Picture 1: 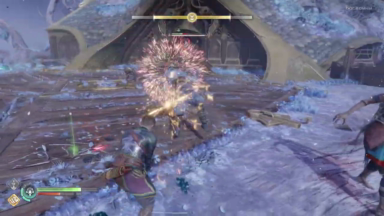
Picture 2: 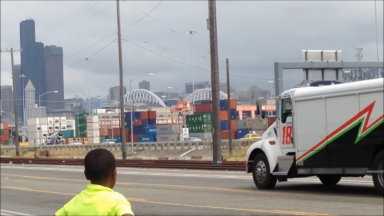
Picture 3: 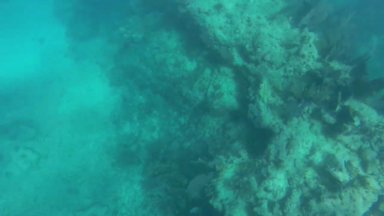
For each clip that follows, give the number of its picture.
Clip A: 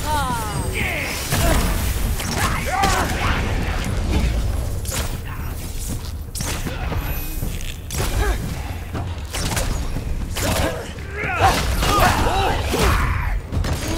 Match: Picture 1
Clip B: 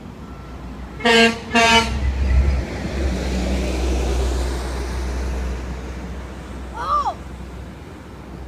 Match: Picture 2